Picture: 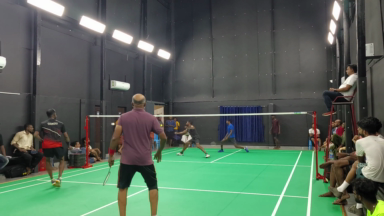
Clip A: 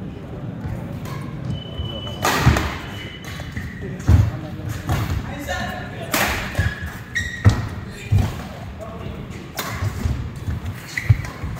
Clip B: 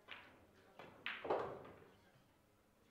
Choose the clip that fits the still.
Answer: A